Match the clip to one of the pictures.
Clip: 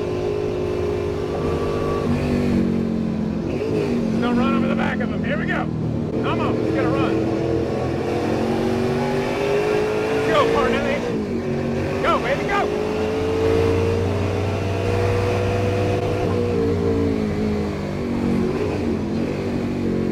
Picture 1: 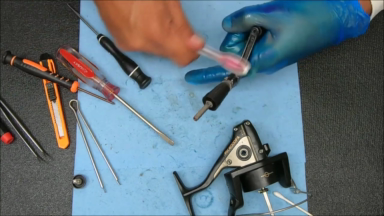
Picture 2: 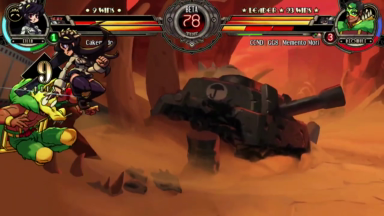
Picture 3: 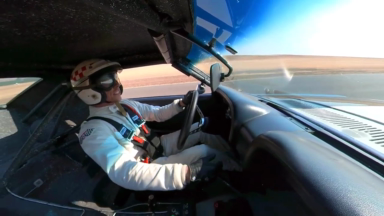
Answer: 3